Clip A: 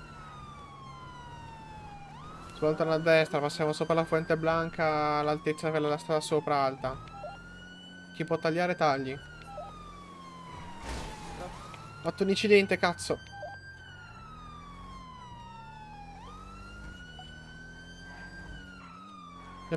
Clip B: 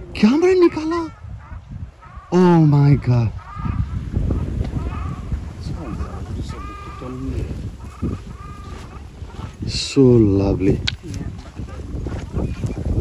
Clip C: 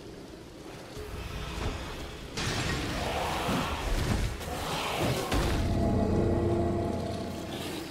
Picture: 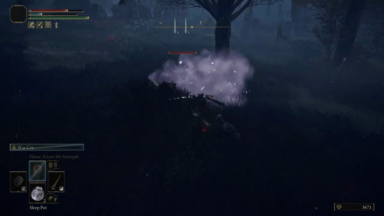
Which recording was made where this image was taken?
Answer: C